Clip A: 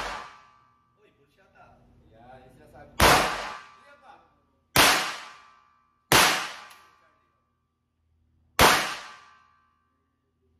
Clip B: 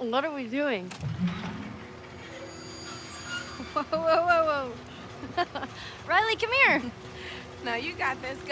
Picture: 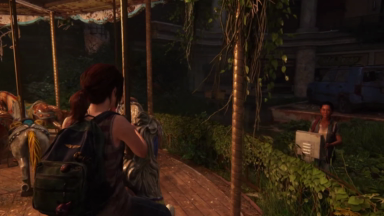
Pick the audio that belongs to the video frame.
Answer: B